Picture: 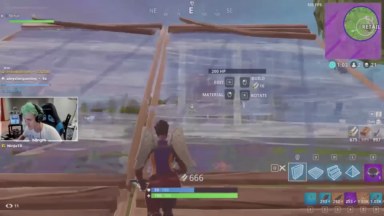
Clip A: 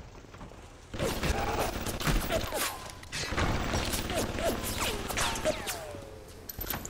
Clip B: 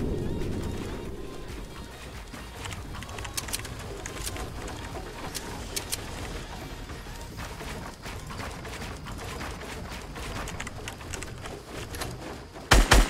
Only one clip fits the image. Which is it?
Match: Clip B